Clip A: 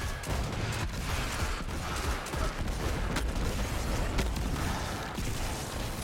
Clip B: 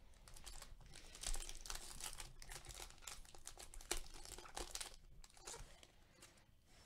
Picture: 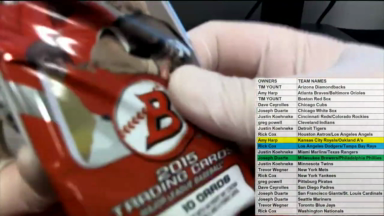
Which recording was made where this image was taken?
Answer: B